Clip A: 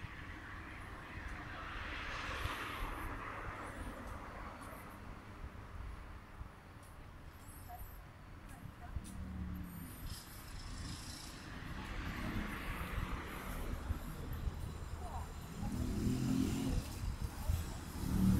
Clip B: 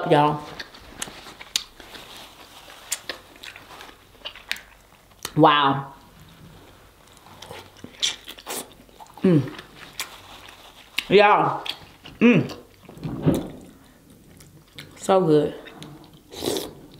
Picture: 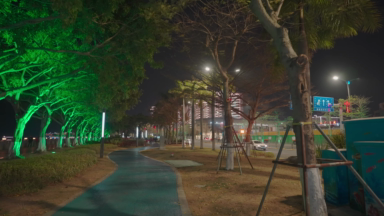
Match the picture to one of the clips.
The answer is A